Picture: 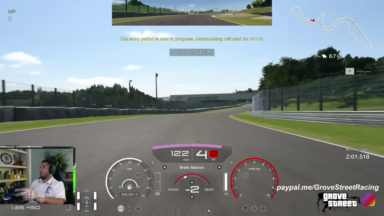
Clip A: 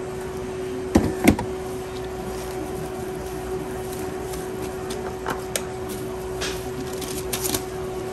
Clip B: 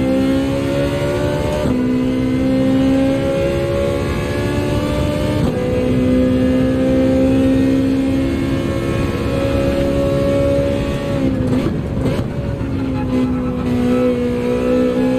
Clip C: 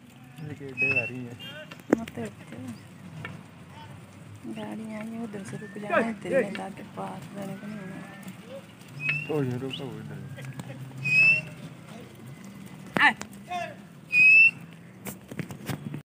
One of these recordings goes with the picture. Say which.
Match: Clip B